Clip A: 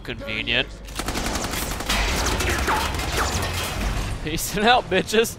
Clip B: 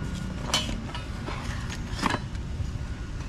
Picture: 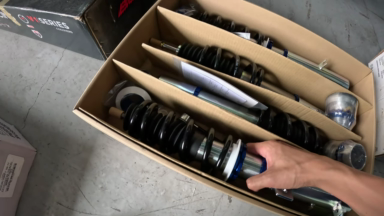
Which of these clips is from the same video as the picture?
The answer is B